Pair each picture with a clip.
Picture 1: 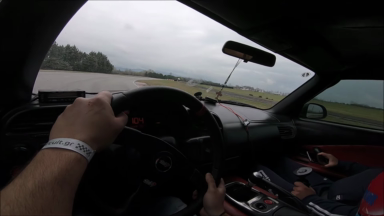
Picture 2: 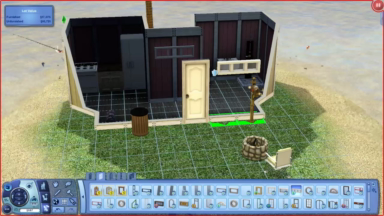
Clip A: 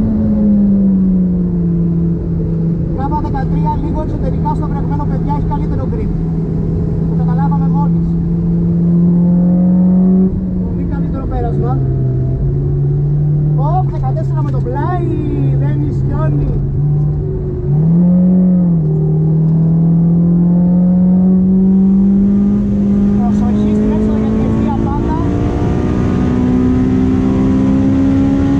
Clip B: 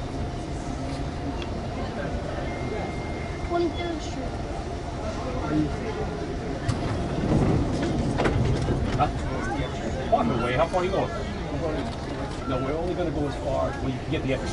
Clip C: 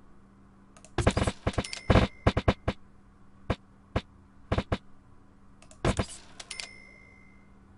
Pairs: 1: A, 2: C